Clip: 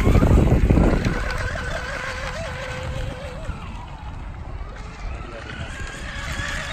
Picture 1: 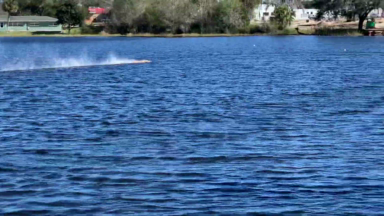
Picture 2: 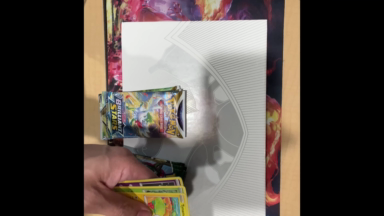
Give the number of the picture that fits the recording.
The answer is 1